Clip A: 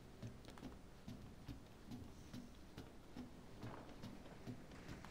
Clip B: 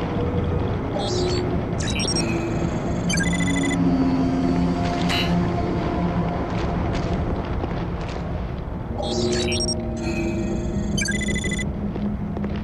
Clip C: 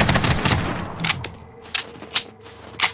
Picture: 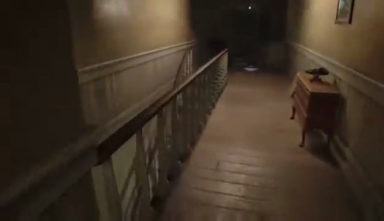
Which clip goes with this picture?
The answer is A